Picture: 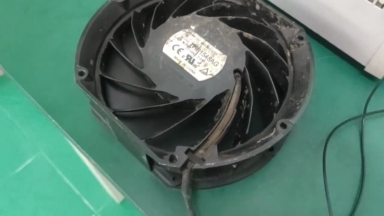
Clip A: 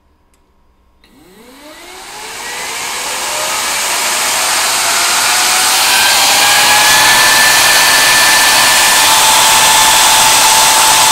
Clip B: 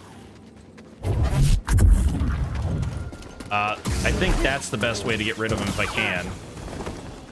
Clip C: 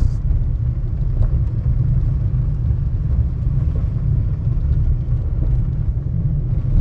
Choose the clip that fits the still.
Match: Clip A